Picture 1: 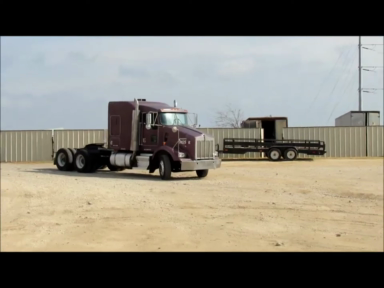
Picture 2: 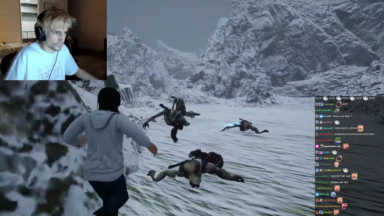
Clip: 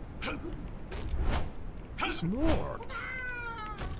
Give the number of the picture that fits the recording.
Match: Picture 2